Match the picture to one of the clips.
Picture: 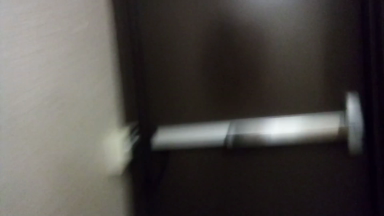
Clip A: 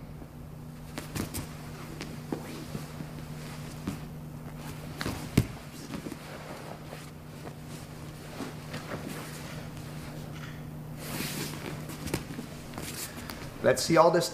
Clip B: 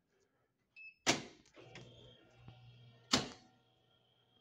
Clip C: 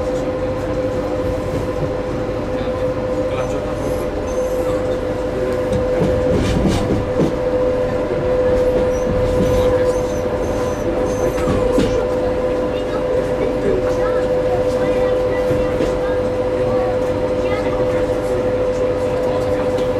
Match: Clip B